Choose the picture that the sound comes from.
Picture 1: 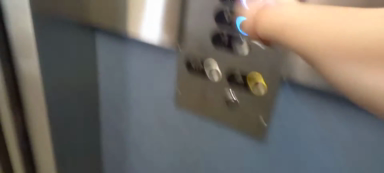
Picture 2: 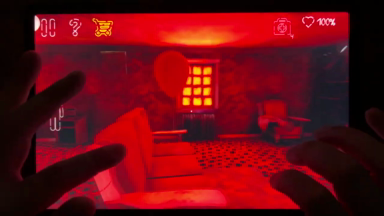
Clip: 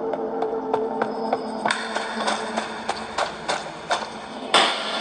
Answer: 2